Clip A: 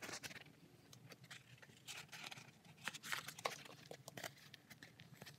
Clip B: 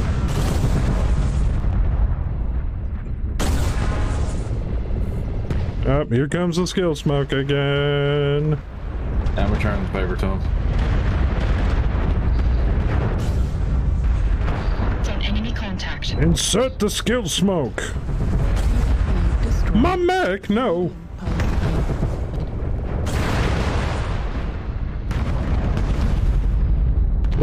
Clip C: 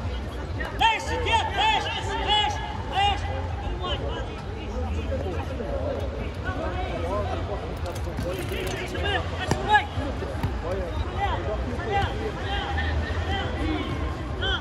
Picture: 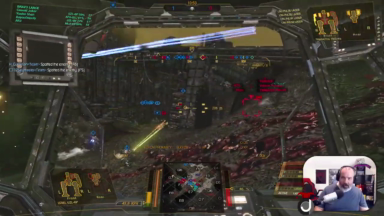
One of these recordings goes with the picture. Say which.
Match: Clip B